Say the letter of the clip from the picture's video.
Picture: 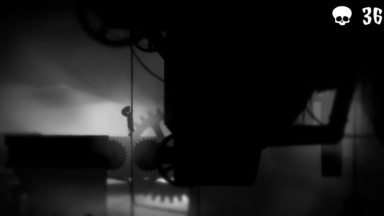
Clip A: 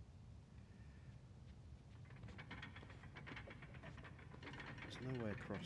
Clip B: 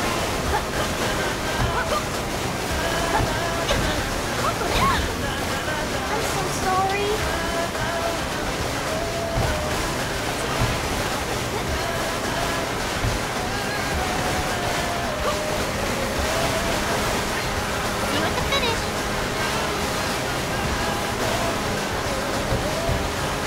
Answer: A